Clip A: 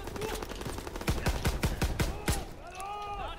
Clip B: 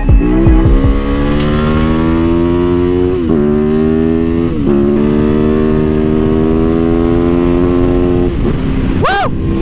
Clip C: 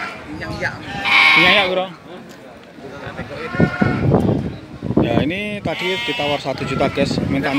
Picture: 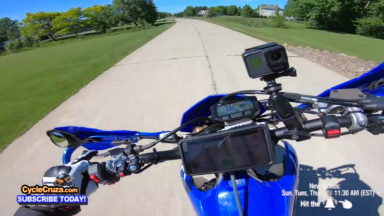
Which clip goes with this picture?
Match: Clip B